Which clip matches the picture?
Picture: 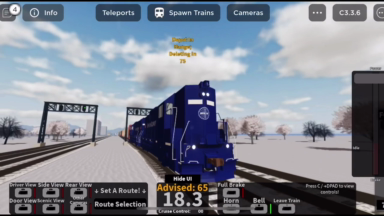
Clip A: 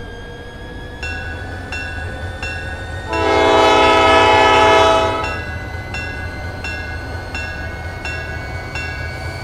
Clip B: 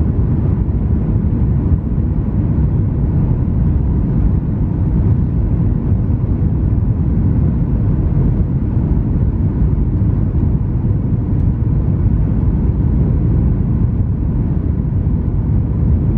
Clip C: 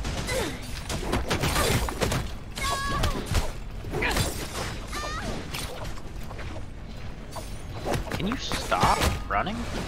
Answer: A